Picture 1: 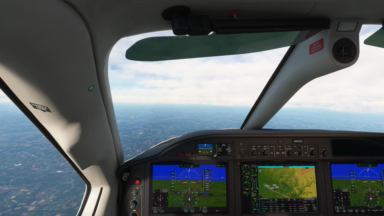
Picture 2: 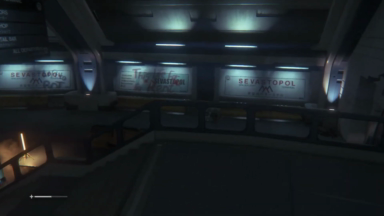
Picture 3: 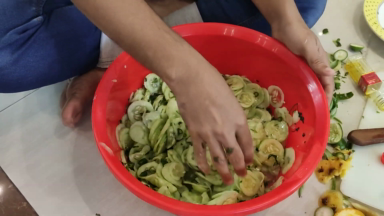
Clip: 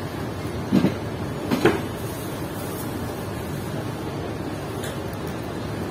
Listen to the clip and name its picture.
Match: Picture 3